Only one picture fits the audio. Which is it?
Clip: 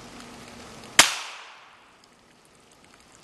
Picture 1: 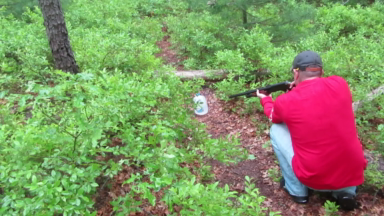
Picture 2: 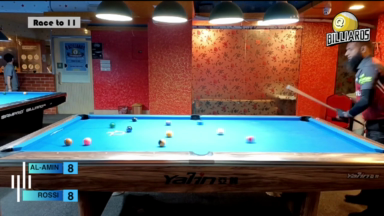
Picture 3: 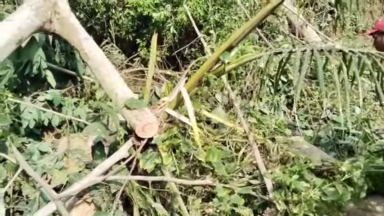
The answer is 1